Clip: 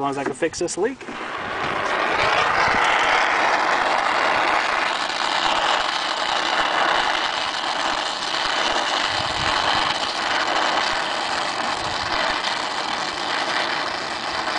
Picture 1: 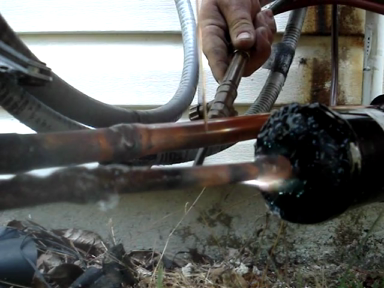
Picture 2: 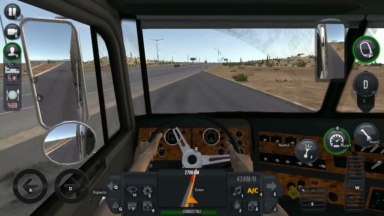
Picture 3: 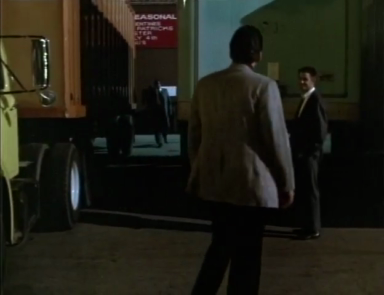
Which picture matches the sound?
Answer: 1